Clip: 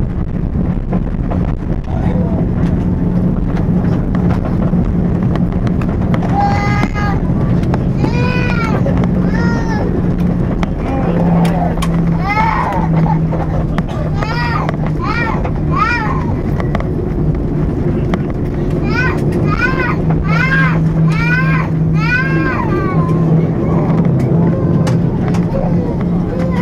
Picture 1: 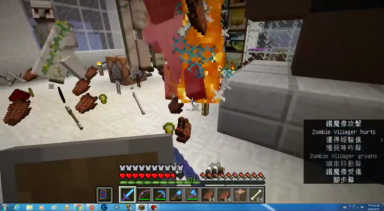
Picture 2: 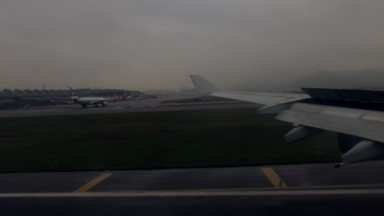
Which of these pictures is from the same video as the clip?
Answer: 2